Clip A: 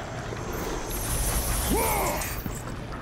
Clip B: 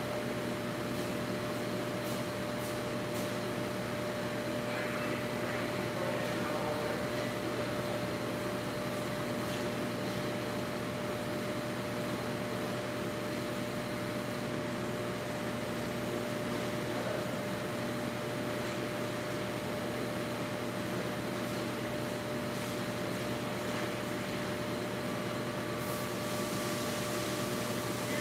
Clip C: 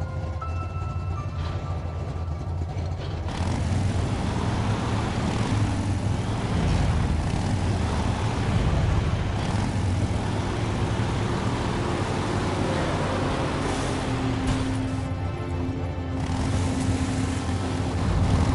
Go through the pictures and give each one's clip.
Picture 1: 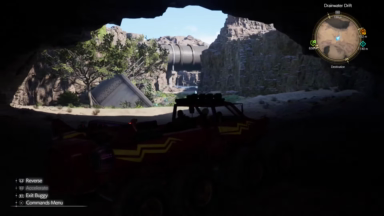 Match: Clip C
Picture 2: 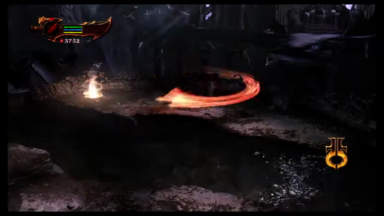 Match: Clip A